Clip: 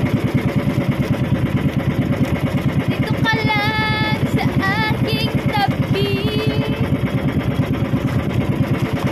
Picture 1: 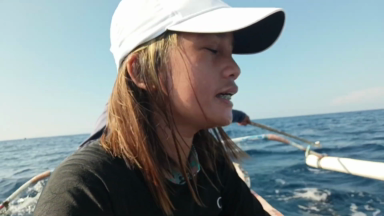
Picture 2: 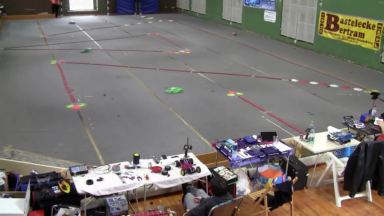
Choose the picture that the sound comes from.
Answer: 1